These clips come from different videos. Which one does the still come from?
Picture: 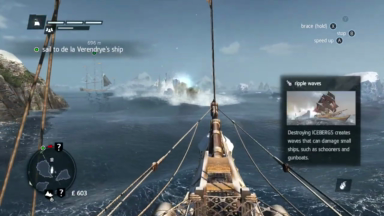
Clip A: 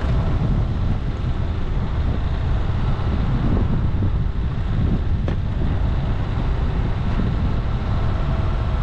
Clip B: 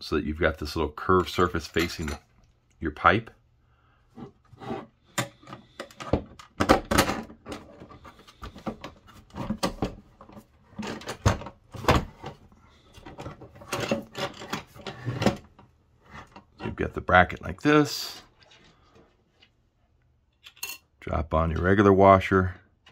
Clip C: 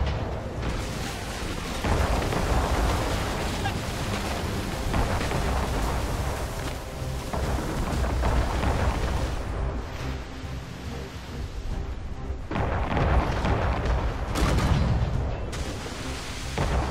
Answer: C